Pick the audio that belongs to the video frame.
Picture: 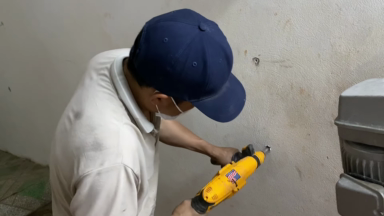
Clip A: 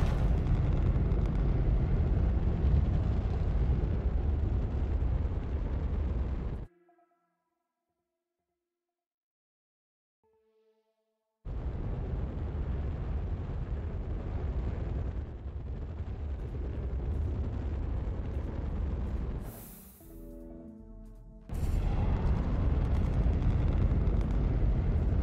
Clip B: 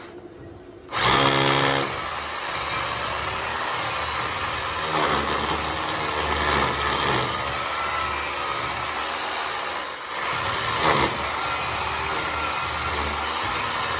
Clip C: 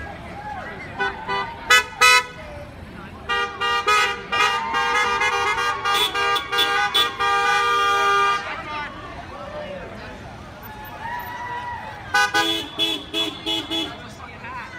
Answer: B